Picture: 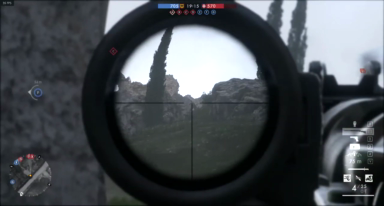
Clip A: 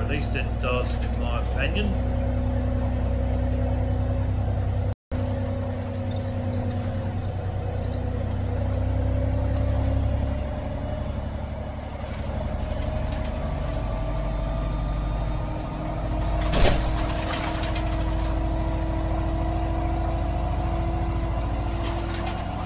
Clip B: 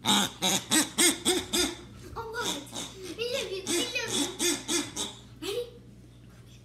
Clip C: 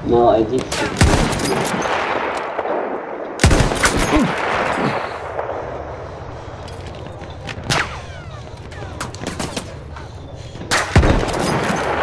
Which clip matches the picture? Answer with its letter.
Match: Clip C